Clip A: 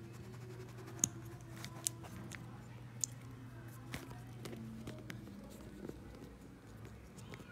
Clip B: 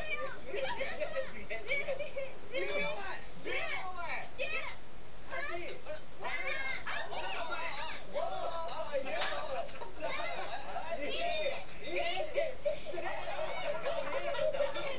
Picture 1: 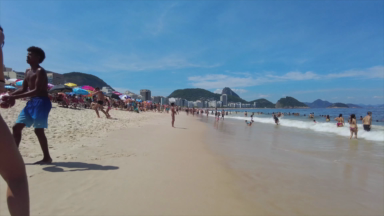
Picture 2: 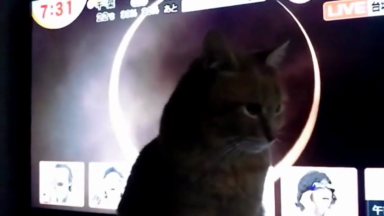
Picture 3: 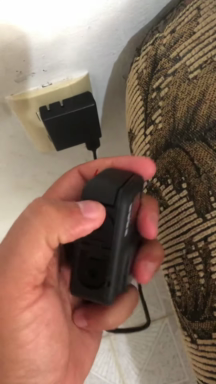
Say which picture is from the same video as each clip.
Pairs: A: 3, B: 2